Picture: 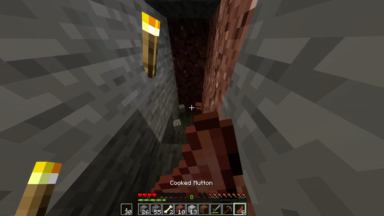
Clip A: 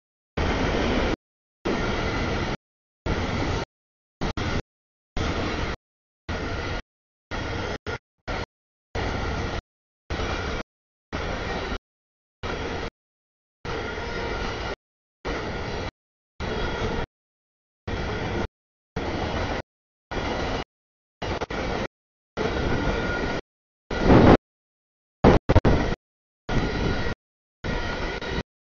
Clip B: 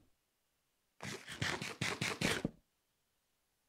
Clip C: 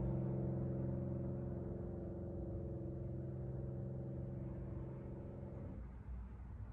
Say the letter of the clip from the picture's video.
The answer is B